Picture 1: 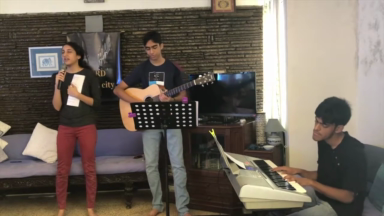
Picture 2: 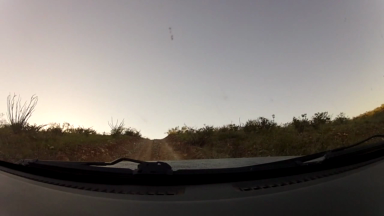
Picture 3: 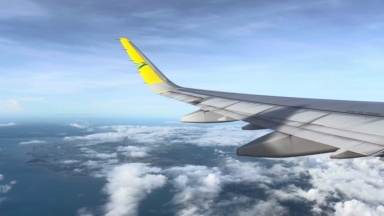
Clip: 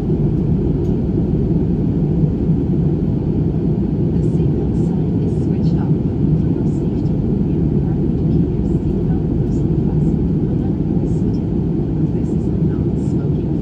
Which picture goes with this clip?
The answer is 3